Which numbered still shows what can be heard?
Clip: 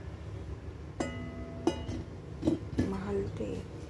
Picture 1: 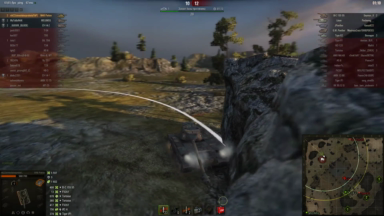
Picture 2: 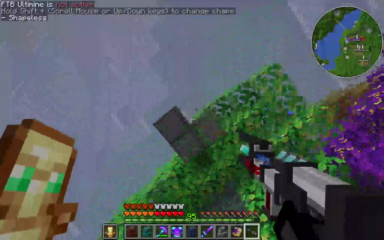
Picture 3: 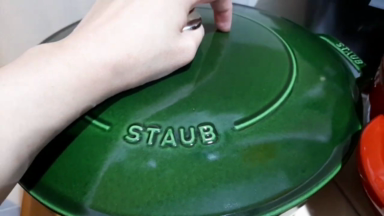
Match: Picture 3